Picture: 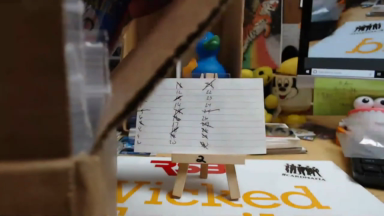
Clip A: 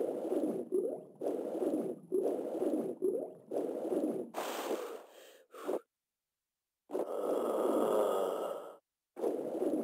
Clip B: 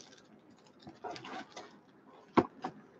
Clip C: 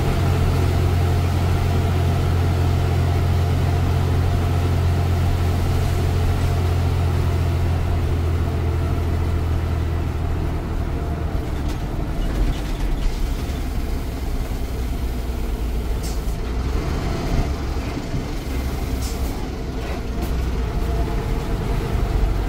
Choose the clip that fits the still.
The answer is B